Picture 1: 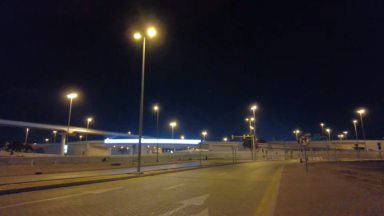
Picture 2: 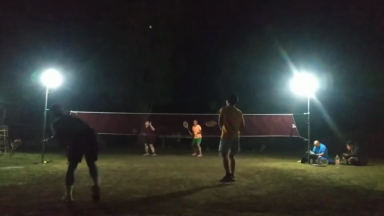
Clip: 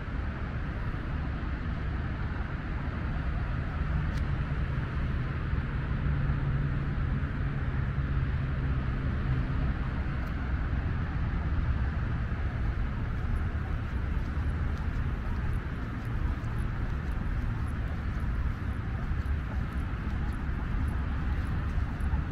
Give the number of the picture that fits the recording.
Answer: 1